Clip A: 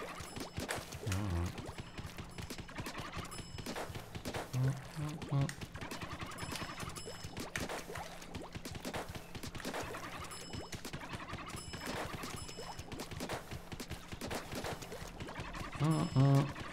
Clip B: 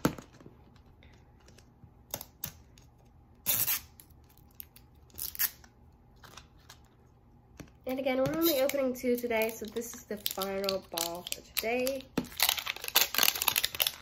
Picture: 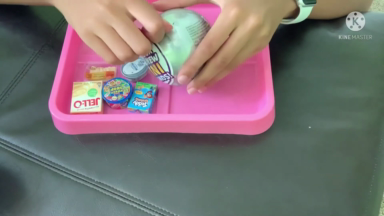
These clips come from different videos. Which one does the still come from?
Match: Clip B